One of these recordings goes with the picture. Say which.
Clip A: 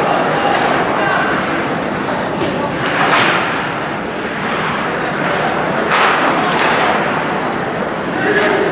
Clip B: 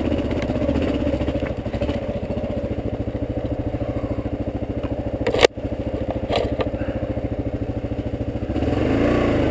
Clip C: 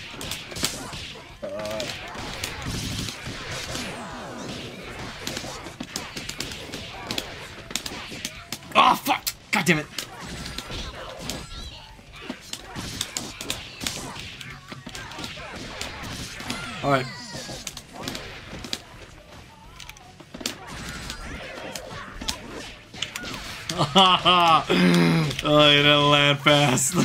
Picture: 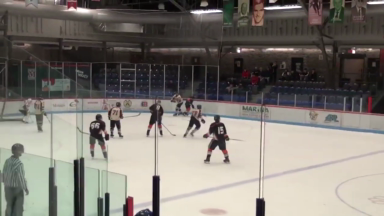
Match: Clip A